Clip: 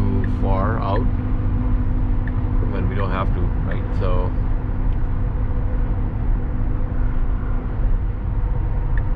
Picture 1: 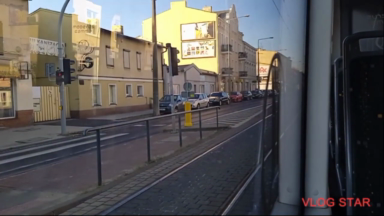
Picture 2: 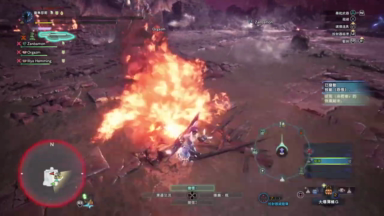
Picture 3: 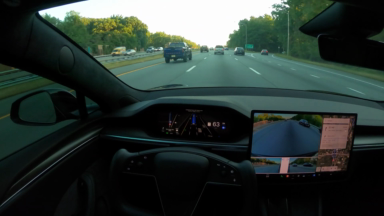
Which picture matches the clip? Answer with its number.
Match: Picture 3